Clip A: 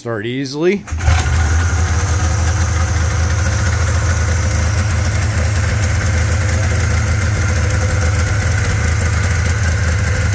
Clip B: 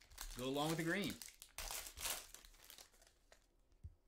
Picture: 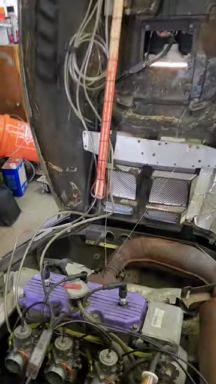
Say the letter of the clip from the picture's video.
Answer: A